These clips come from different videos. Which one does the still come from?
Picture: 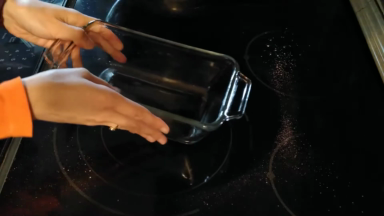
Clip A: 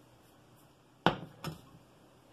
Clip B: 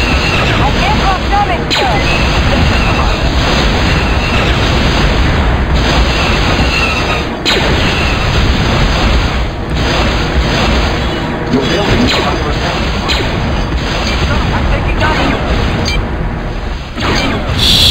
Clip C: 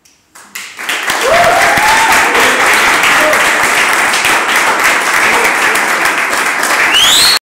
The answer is A